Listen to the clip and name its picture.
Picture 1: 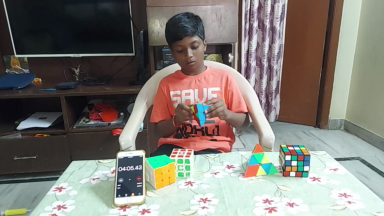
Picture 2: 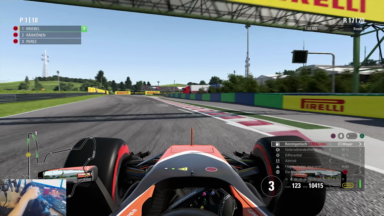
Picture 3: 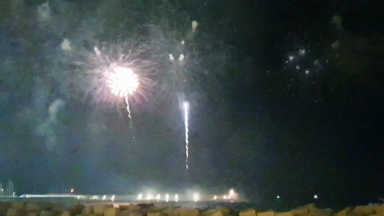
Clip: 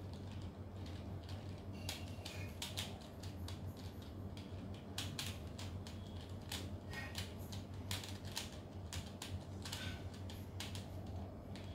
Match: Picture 1